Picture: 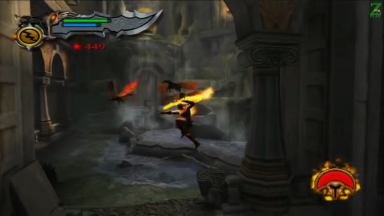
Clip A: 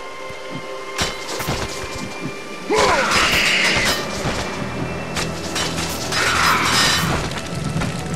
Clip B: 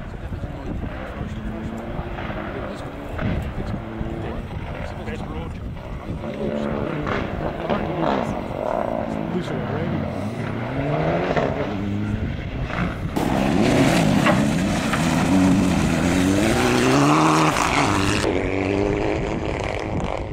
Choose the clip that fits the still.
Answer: A